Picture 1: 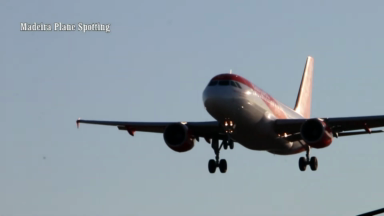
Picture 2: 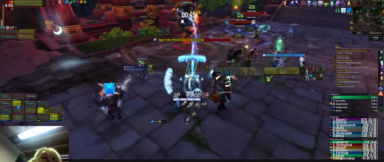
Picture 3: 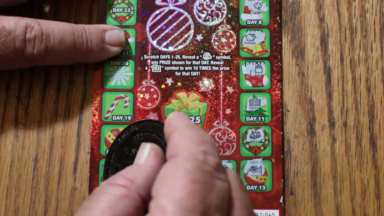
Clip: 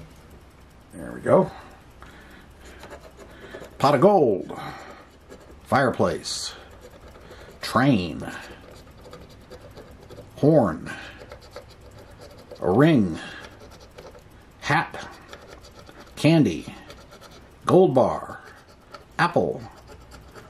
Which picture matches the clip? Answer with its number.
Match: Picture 3